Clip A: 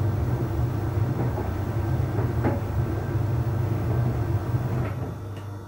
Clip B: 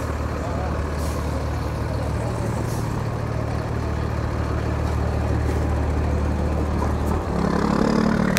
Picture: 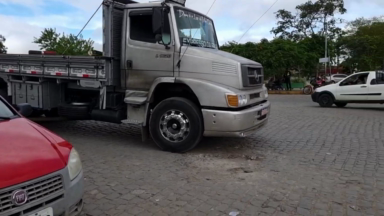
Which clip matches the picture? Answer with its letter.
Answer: B